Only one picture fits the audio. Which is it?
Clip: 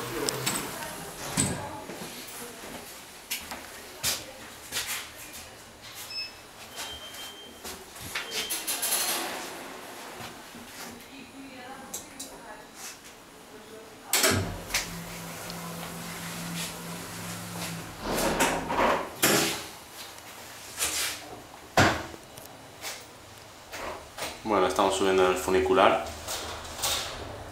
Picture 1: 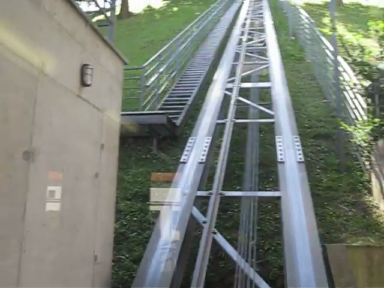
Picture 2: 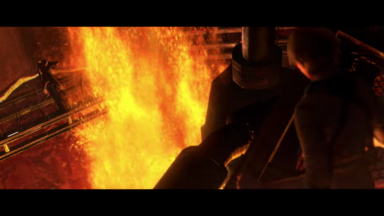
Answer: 1